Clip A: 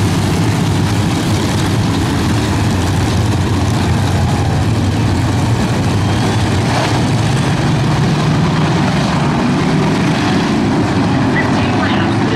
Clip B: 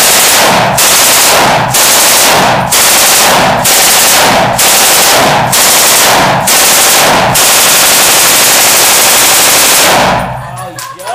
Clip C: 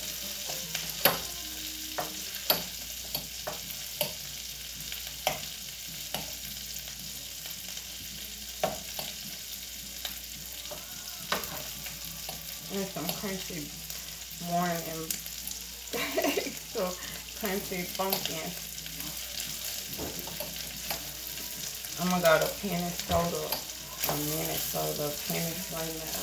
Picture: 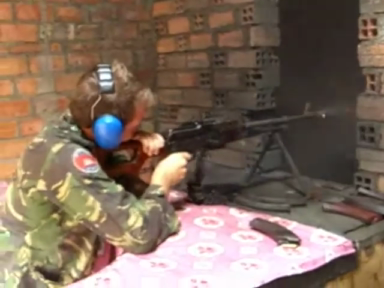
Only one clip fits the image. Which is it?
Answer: B